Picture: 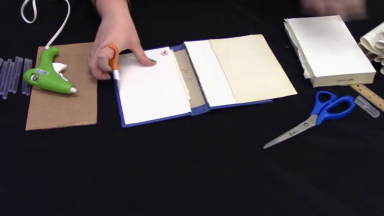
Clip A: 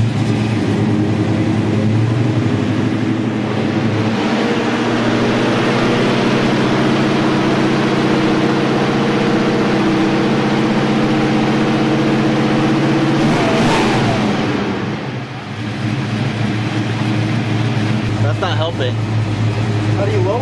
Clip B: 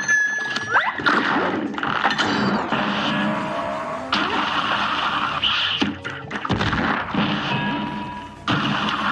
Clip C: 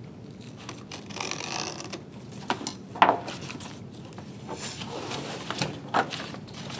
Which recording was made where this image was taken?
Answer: C